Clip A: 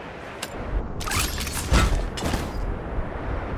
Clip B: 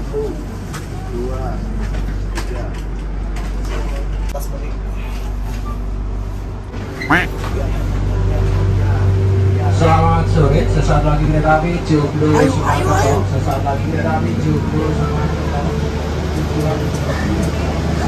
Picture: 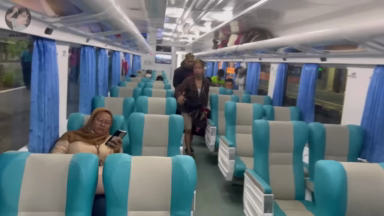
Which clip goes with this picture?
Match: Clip B